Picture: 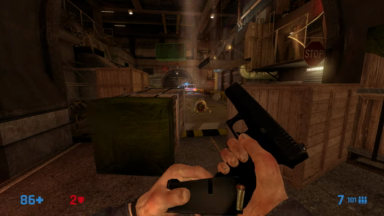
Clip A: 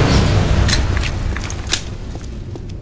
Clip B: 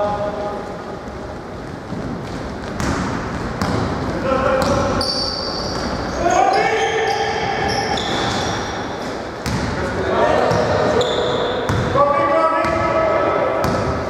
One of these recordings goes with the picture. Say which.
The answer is A